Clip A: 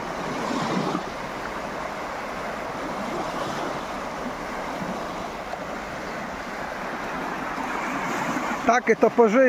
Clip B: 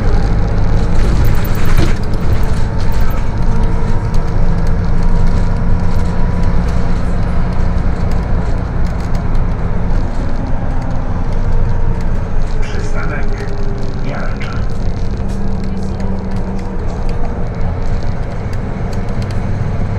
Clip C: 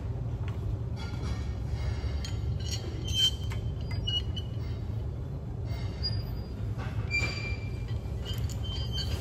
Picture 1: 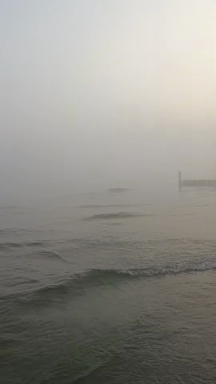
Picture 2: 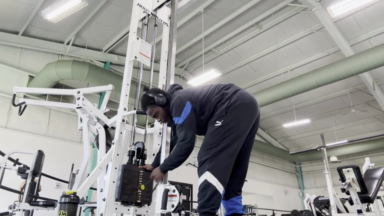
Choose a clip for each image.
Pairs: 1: A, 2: C